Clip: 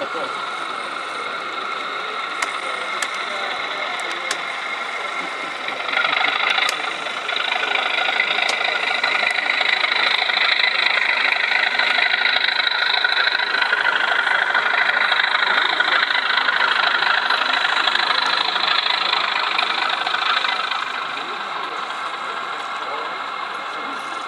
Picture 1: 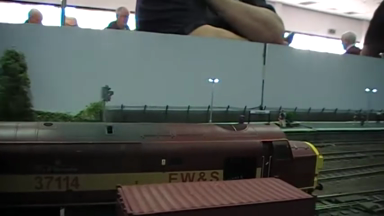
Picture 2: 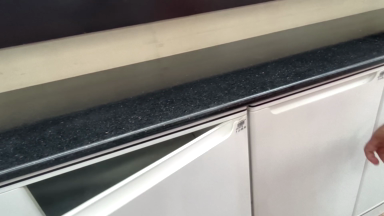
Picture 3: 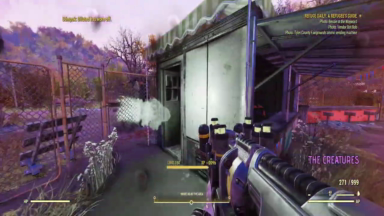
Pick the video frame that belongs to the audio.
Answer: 1